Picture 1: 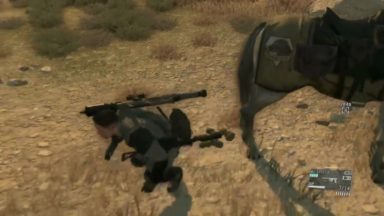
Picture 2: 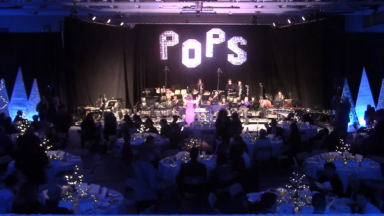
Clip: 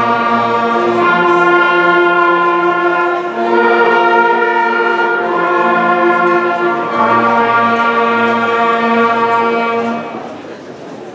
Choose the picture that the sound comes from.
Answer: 2